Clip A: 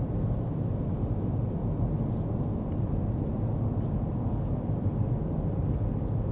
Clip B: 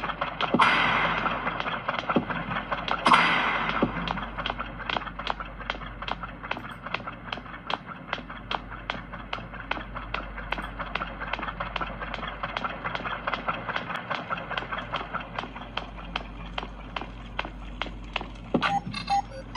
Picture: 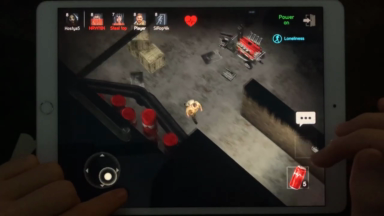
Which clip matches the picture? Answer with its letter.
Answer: B